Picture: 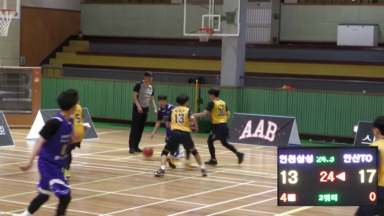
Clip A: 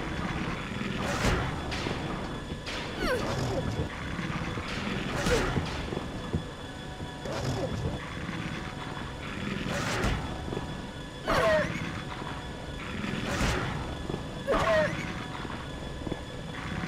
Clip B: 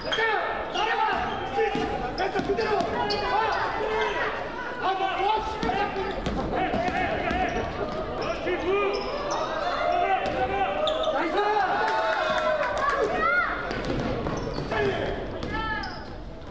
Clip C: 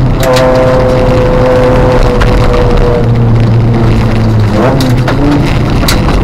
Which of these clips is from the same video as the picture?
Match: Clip B